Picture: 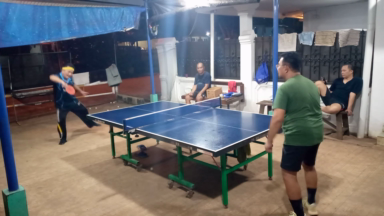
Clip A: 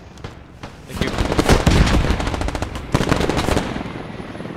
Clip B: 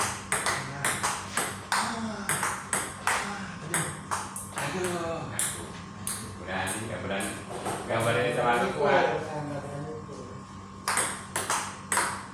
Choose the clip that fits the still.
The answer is B